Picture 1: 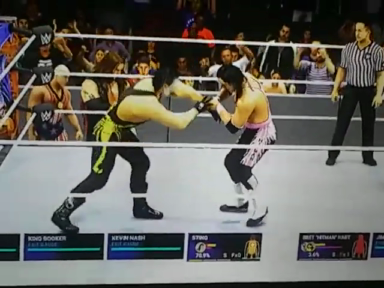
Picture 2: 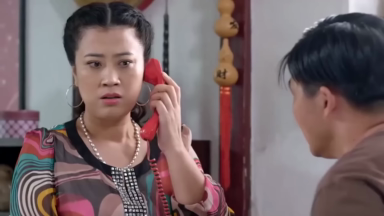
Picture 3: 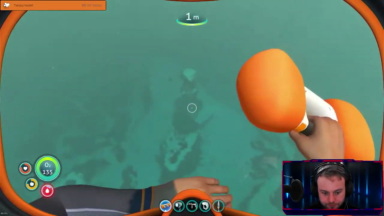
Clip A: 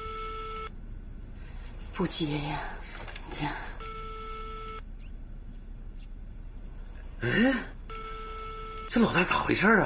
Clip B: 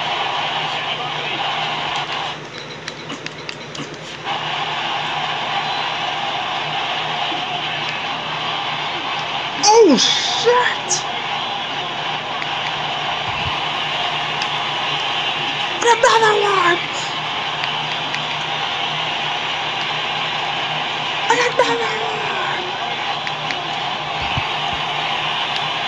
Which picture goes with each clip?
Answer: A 2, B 1